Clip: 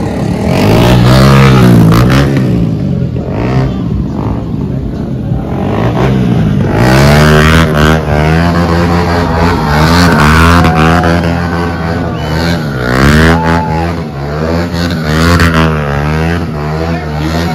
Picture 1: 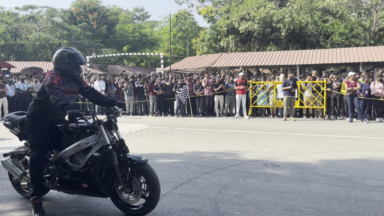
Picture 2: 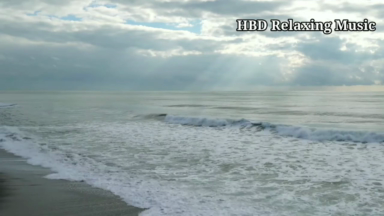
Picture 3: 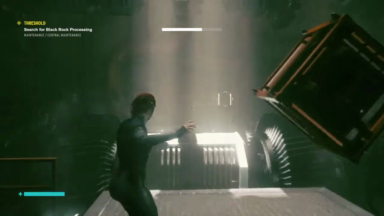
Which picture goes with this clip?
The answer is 1